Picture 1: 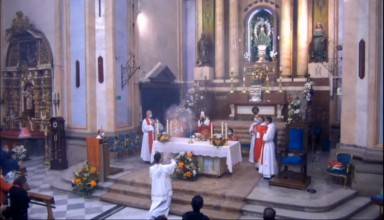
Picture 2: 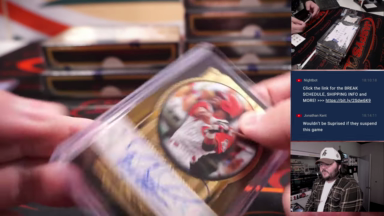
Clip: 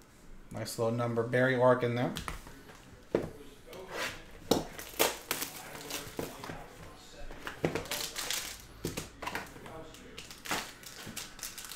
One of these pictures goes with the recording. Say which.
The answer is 2